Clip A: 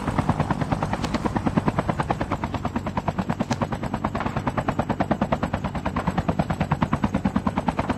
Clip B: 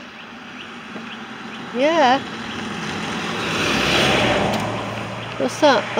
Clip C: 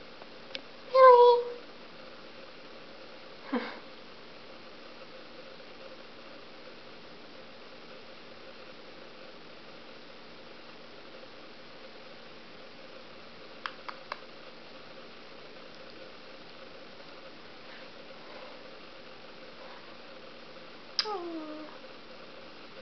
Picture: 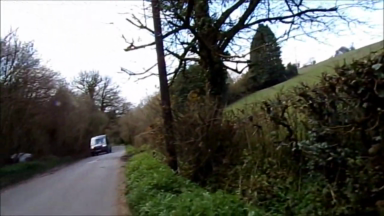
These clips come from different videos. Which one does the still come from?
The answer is B